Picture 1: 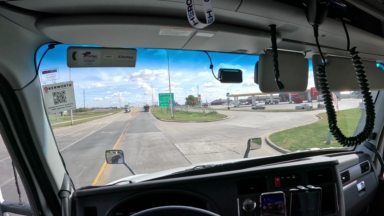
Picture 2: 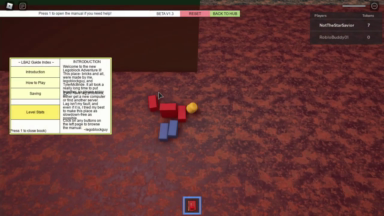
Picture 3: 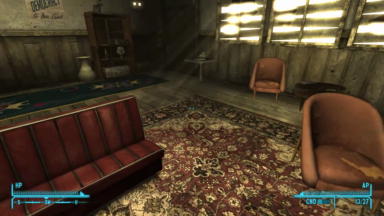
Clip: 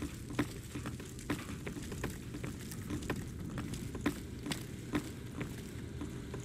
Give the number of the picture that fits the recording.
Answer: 3